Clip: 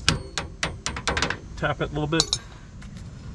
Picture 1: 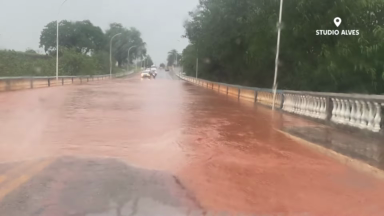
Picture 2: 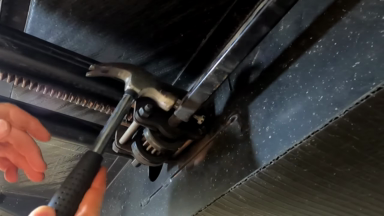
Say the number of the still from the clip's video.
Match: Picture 2